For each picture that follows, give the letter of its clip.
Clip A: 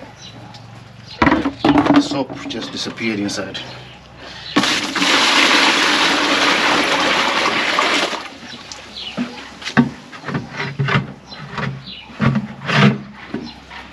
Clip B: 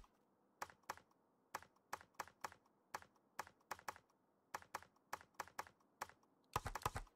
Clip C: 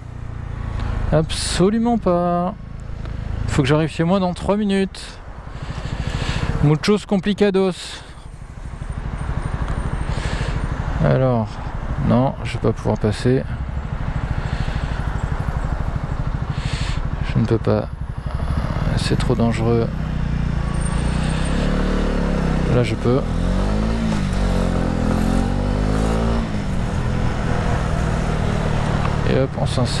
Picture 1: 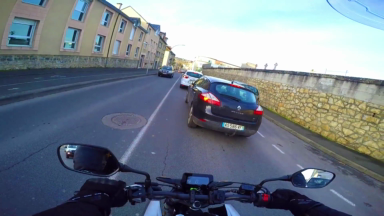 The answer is C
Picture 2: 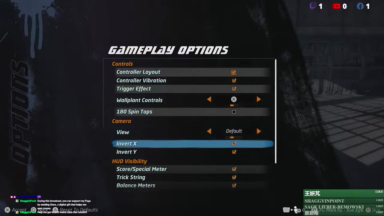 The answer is B